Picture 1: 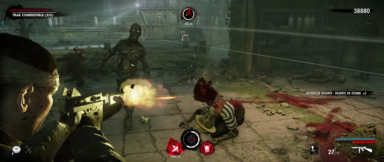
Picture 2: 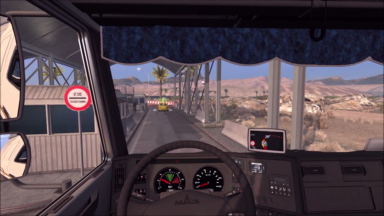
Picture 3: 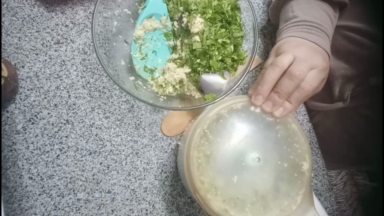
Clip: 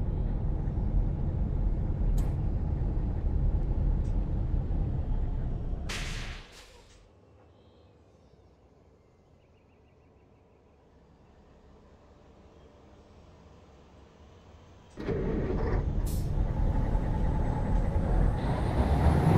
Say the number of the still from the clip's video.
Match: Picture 2